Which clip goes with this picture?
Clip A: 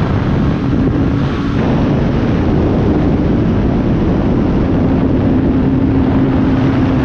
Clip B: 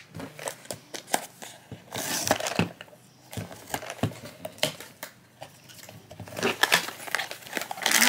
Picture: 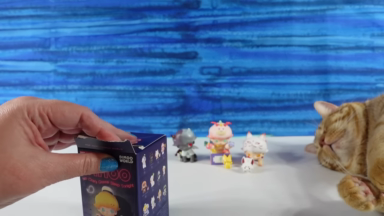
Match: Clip B